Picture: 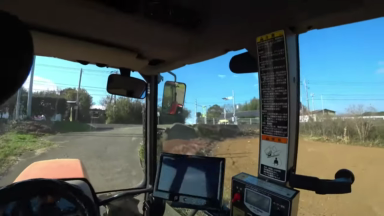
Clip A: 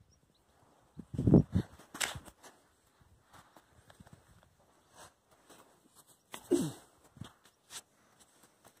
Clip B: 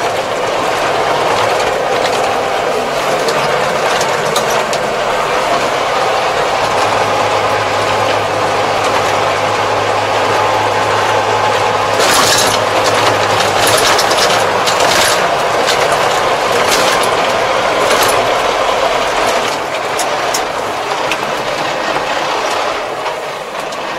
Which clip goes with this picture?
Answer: B